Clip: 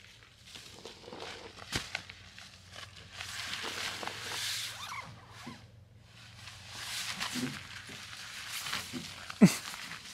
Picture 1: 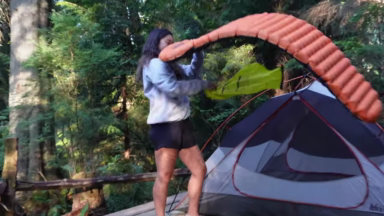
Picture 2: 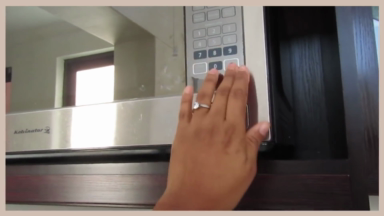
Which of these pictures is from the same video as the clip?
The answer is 1